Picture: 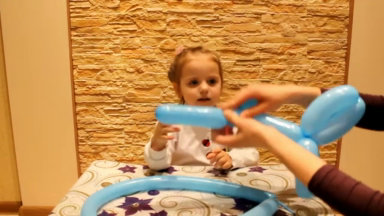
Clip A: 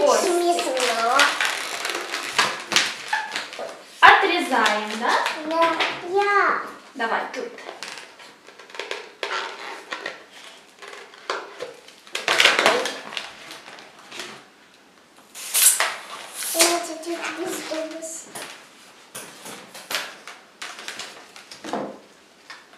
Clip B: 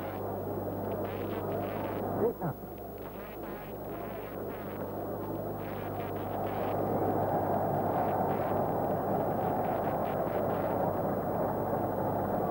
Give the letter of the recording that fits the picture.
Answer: A